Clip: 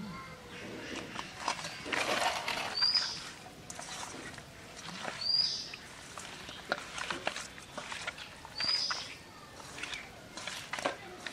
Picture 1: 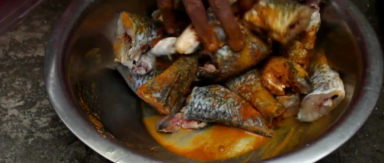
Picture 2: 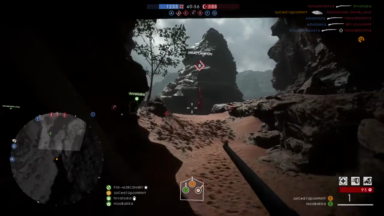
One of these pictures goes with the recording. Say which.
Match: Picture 1